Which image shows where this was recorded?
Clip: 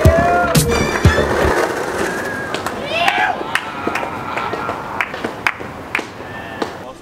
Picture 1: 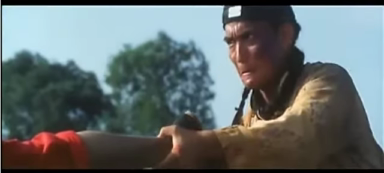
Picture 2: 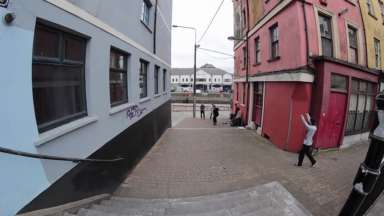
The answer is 2